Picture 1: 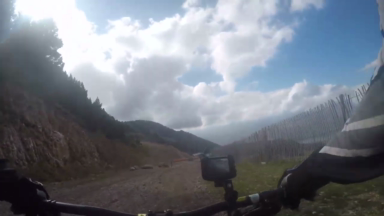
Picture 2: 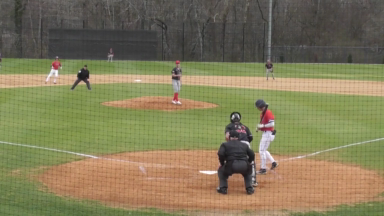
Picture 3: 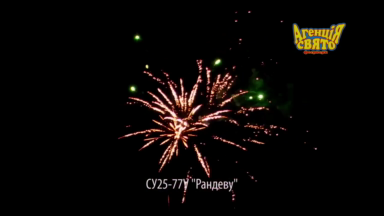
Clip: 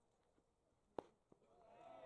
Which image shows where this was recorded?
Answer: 2